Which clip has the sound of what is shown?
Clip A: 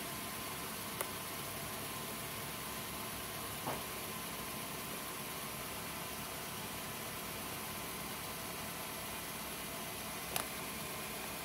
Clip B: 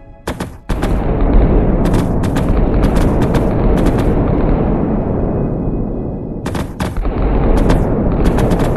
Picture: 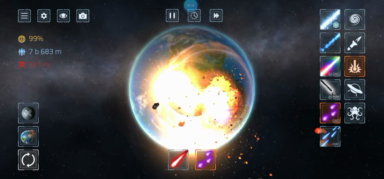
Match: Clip B